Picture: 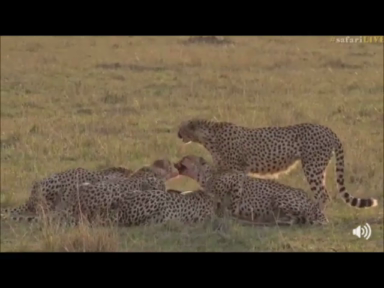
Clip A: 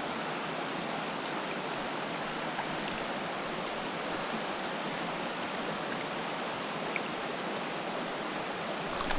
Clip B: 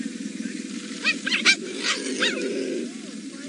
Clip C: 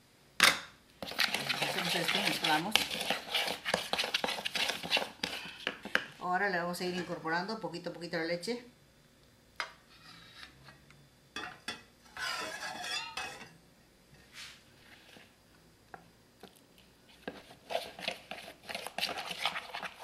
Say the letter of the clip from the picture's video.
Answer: B